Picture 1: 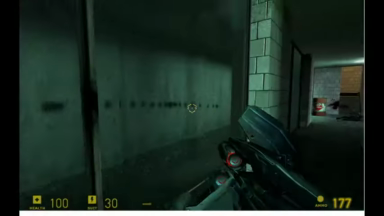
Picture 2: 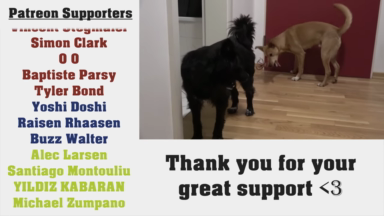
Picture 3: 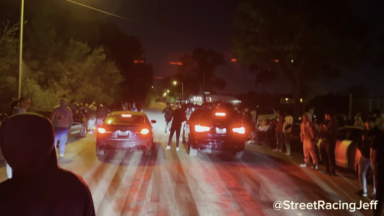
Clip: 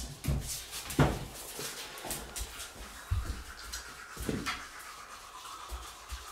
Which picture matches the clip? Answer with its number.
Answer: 2